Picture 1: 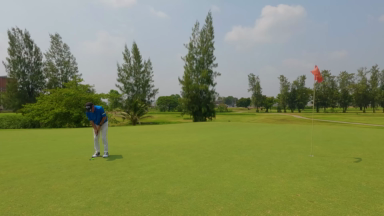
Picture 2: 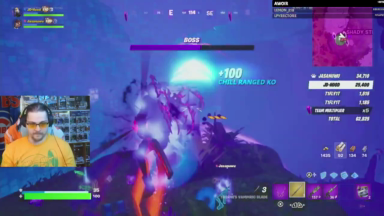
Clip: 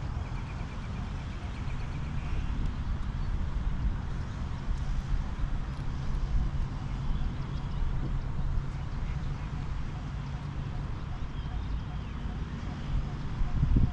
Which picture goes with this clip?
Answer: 1